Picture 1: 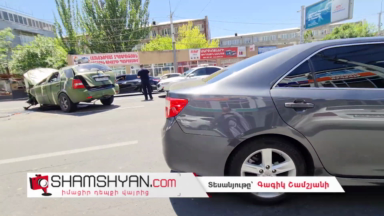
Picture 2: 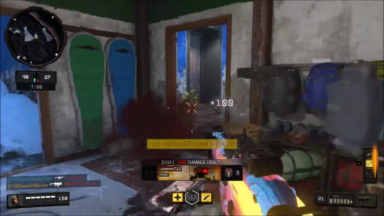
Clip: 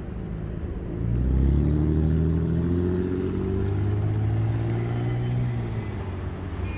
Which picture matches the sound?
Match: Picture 1